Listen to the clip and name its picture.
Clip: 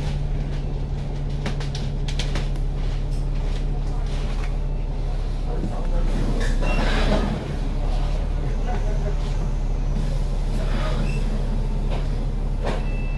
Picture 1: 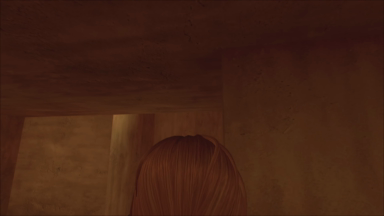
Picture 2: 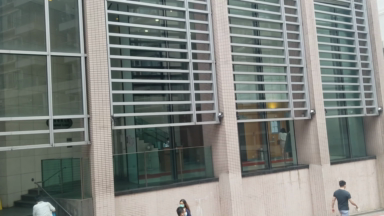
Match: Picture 2